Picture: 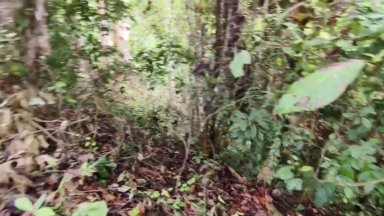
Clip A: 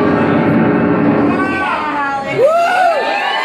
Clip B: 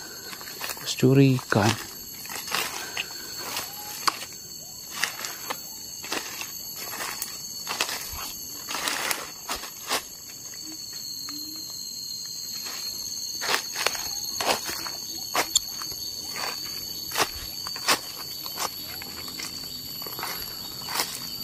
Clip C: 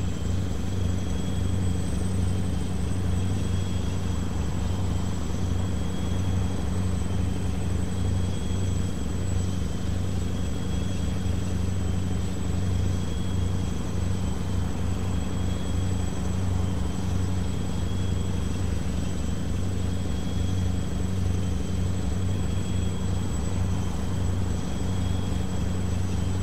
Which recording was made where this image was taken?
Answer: B